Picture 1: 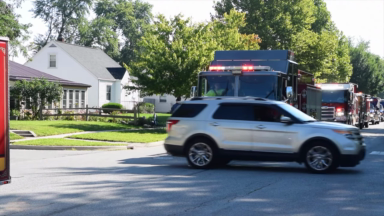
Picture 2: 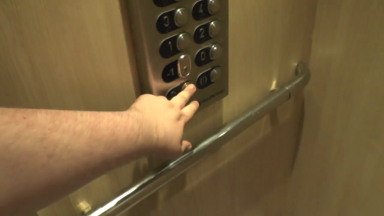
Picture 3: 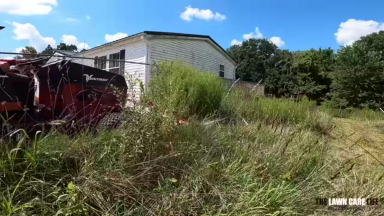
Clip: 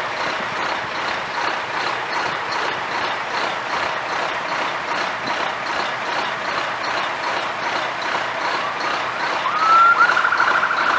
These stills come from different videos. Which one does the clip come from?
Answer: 1